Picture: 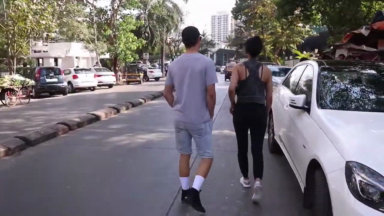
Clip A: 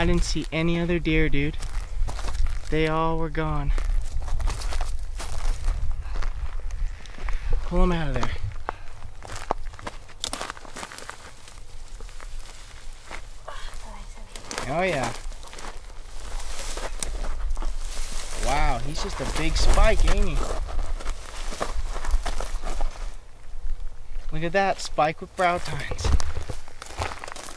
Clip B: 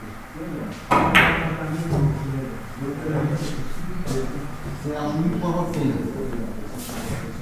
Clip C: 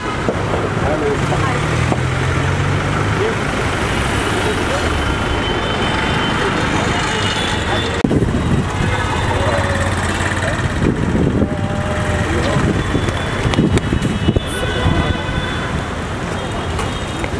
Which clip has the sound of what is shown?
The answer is C